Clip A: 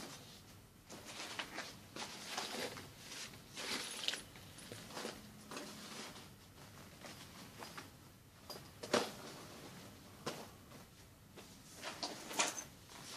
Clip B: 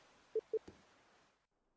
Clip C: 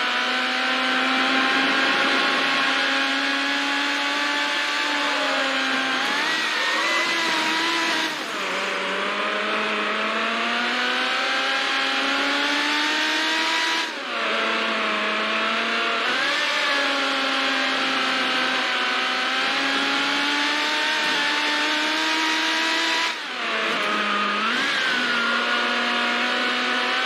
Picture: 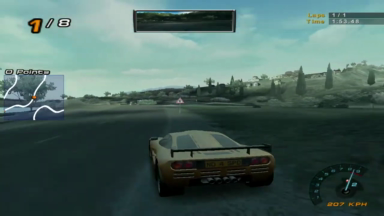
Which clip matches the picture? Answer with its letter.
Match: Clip C